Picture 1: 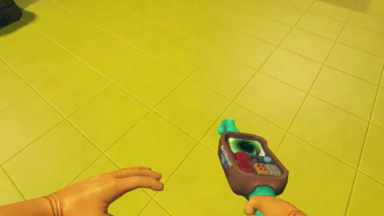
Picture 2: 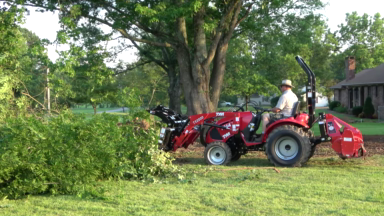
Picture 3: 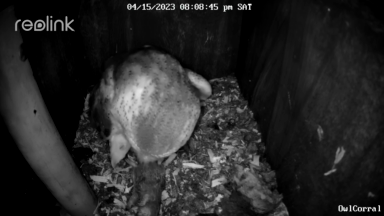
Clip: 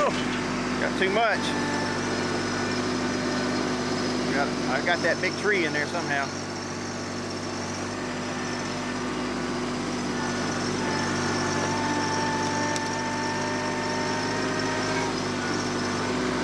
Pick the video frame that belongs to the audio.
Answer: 2